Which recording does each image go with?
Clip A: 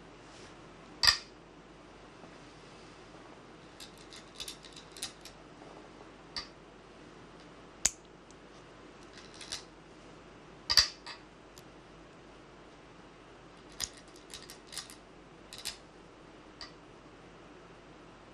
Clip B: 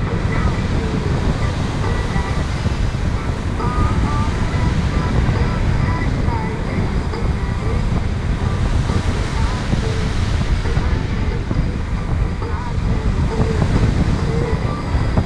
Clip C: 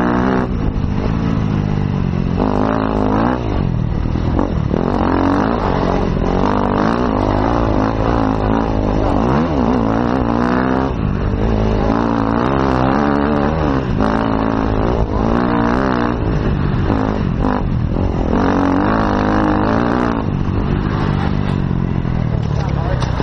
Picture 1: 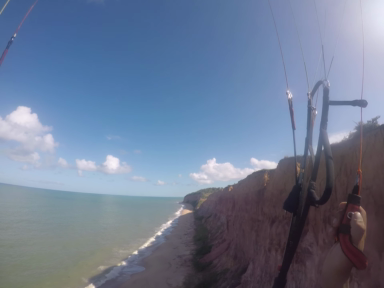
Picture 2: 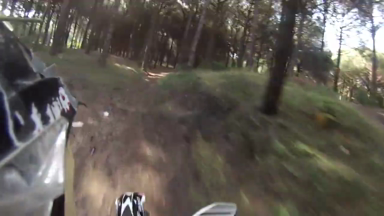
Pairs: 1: B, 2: C